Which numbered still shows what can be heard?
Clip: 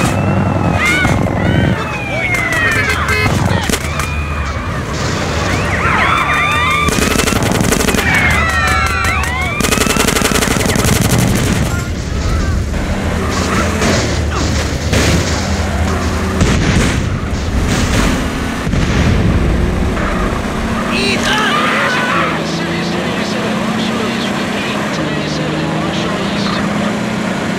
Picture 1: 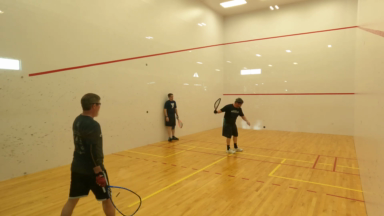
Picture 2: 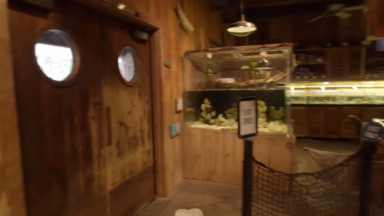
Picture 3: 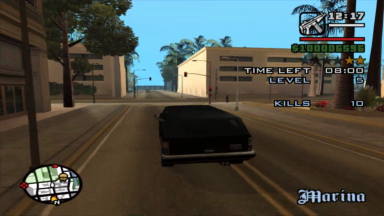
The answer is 3